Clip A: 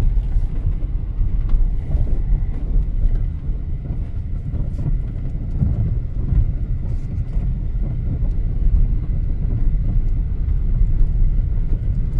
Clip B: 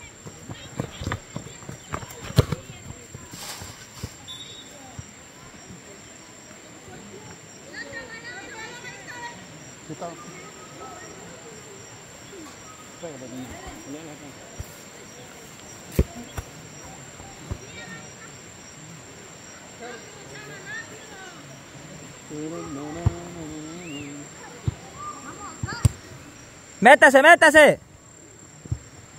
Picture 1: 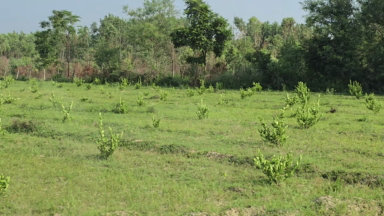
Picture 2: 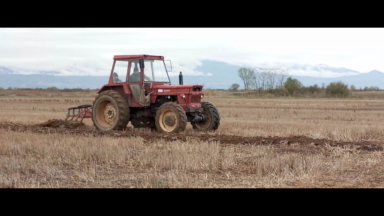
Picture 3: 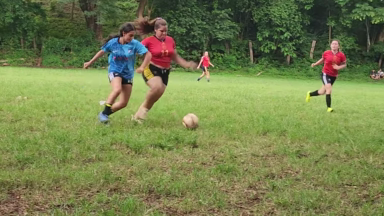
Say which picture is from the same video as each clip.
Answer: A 1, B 3